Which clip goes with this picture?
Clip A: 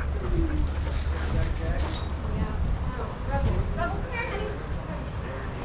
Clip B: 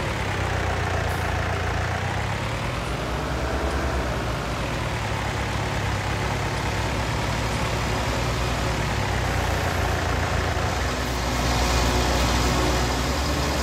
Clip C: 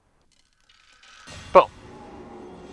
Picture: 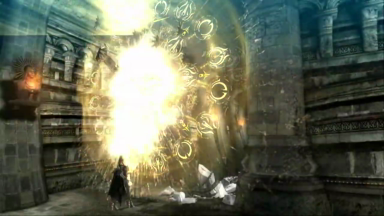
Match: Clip C